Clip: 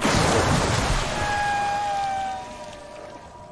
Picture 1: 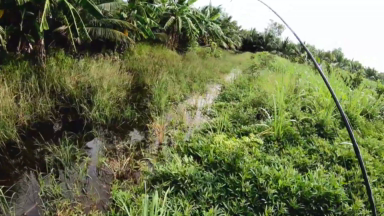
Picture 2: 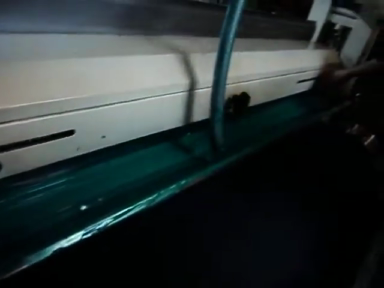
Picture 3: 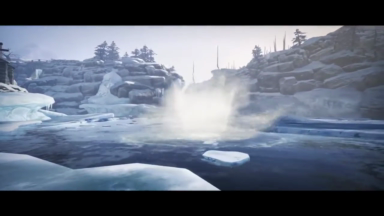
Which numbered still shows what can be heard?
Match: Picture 3